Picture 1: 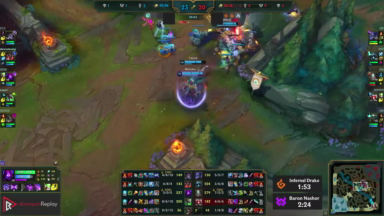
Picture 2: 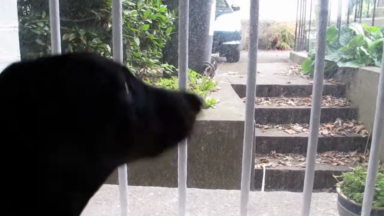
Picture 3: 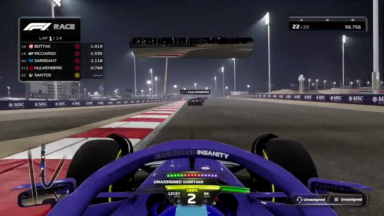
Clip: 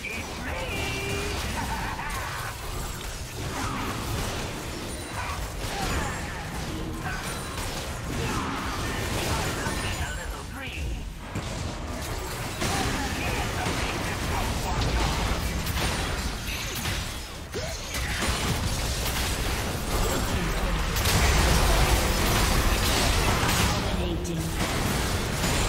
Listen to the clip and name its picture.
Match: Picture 1